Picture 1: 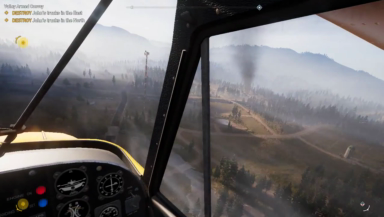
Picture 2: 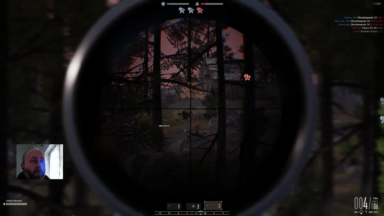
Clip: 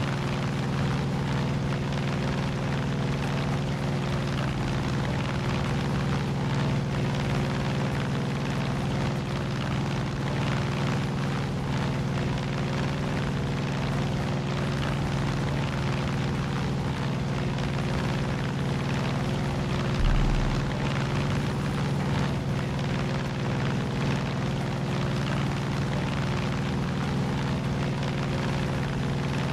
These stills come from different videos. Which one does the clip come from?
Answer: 1